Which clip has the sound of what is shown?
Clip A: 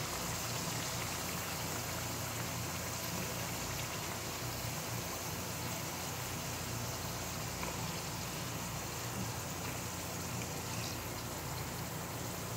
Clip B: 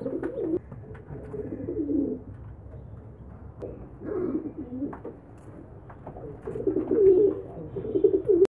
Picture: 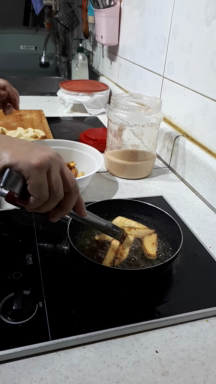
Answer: A